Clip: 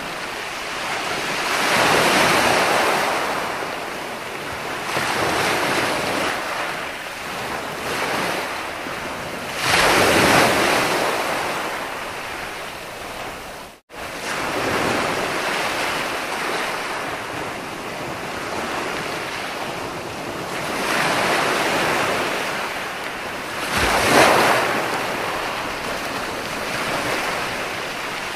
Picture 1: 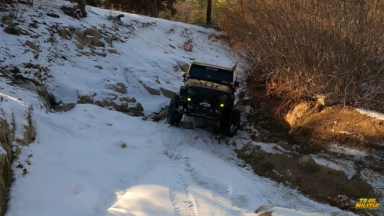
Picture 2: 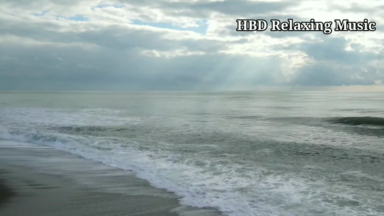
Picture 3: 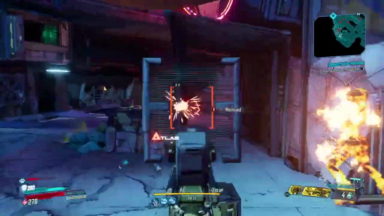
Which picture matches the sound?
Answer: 2